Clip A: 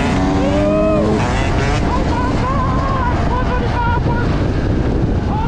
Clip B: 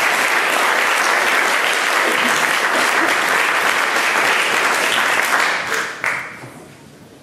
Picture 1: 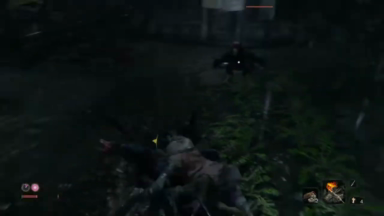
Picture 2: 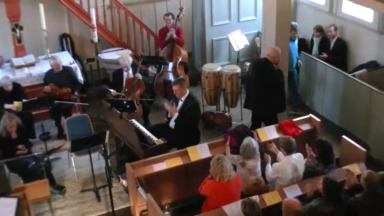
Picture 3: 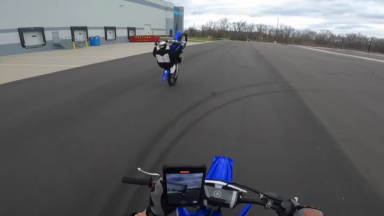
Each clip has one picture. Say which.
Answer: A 3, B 2